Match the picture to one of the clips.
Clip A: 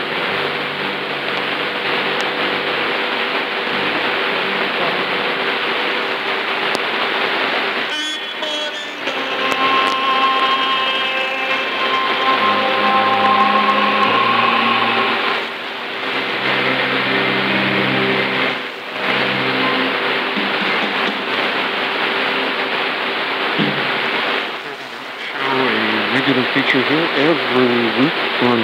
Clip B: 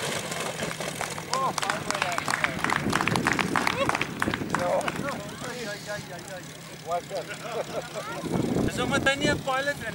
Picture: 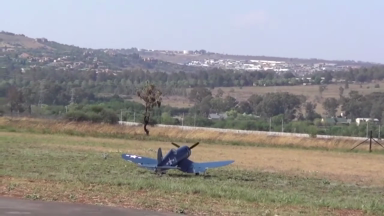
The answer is B